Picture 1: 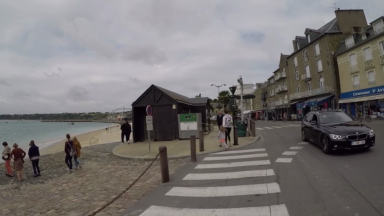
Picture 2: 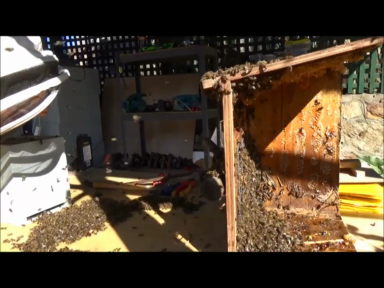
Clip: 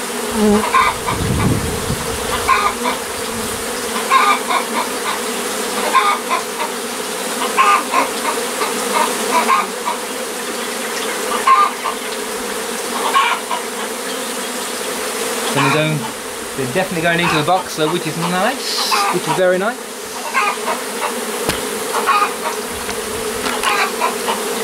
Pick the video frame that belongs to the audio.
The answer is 2